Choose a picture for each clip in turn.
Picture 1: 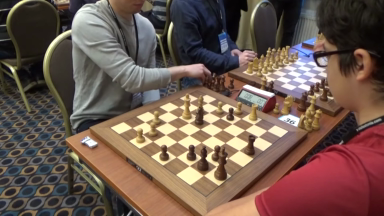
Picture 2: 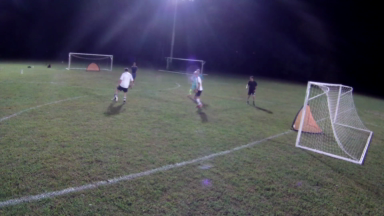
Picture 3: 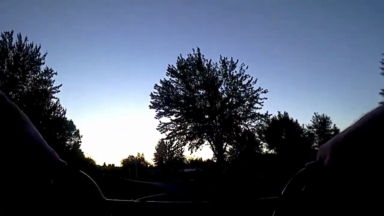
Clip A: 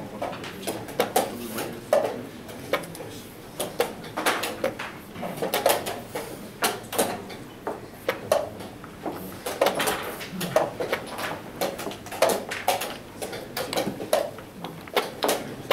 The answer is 1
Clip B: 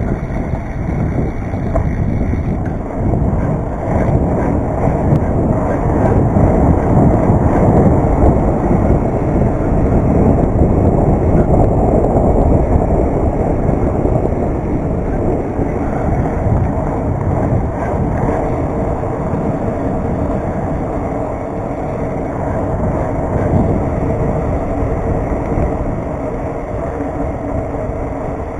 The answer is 3